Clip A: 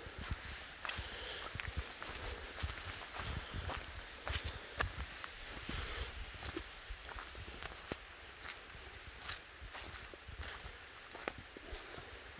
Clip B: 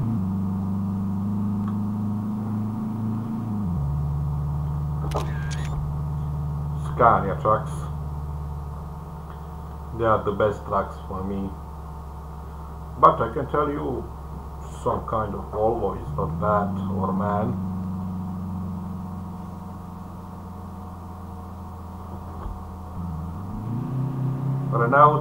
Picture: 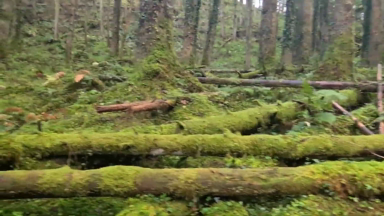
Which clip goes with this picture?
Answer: A